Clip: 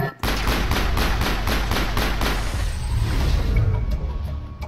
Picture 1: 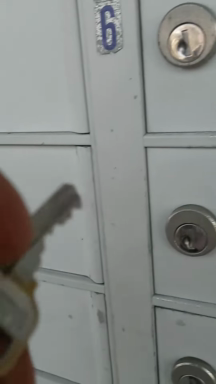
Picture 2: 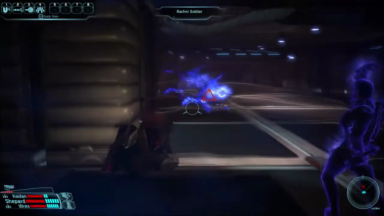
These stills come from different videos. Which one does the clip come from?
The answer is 2